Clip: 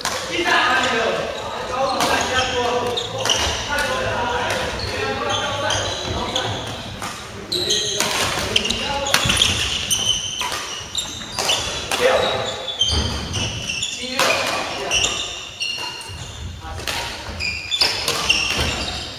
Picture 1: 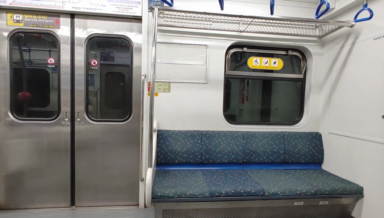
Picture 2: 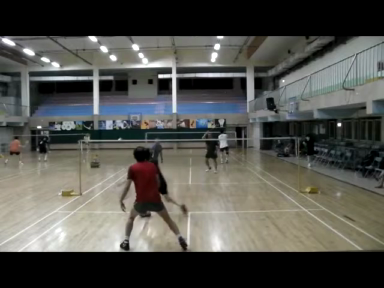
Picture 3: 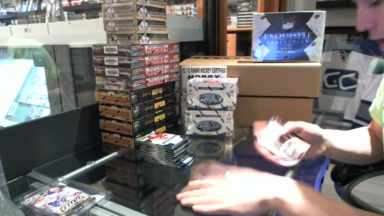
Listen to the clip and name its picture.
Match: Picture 2